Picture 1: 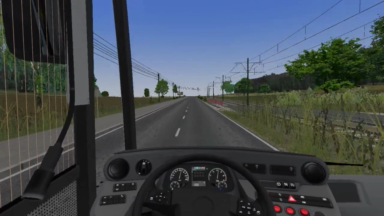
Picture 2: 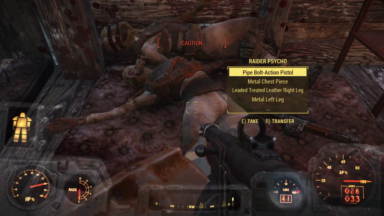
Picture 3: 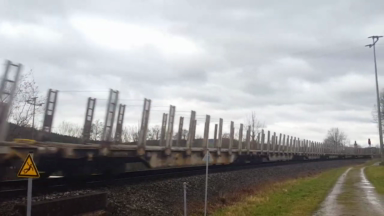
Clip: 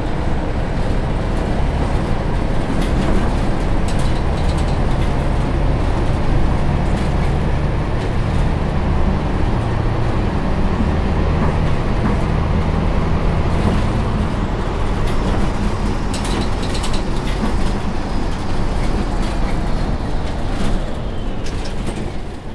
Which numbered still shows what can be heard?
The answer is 1